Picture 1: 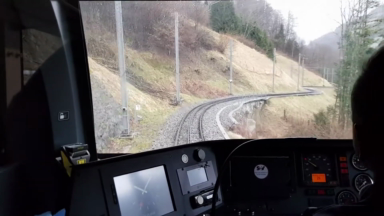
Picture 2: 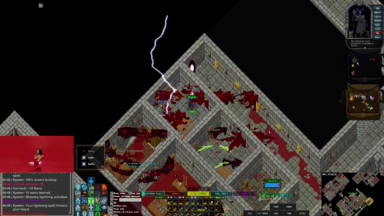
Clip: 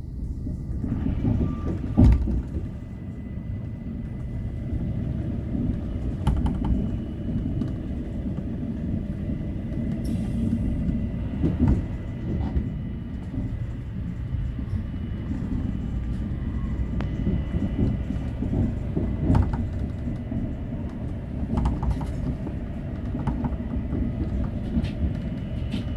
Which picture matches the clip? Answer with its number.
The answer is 1